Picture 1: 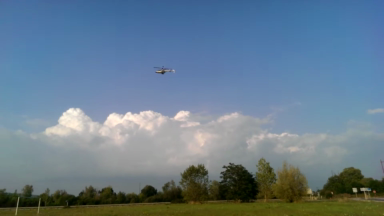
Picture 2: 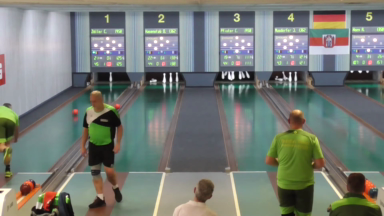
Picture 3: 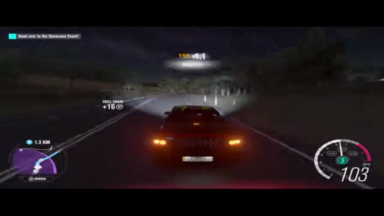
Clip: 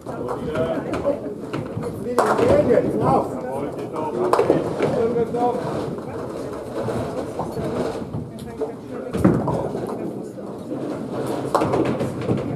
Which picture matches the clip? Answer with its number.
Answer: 2